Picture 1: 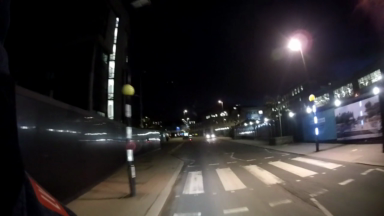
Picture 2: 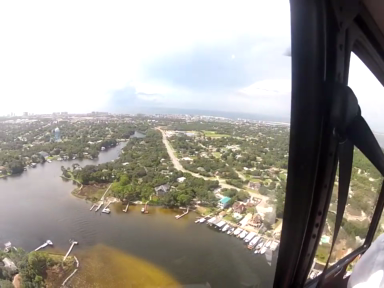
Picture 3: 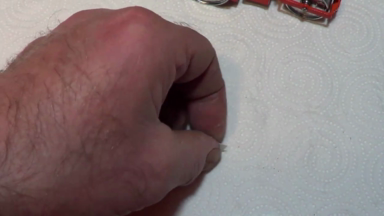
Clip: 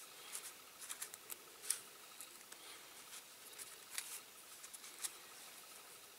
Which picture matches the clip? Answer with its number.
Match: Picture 3